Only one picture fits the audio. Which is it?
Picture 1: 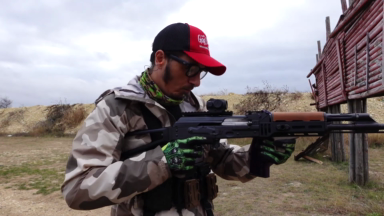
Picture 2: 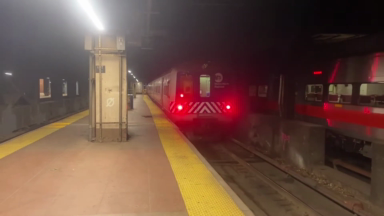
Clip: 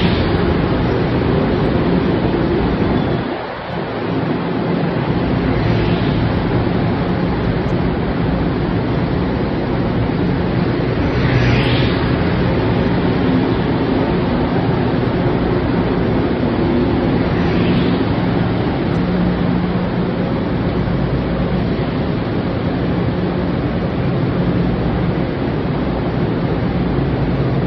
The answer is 2